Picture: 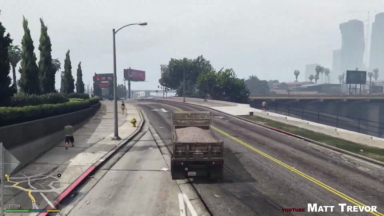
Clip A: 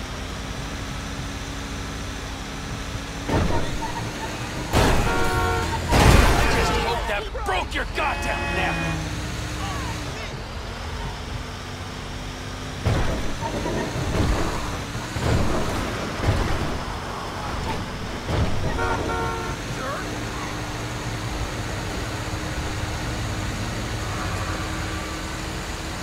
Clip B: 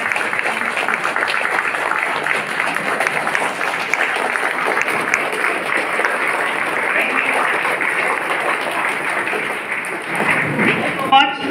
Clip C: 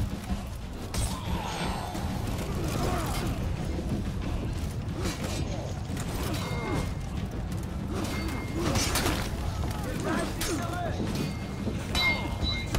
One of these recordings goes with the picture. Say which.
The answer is A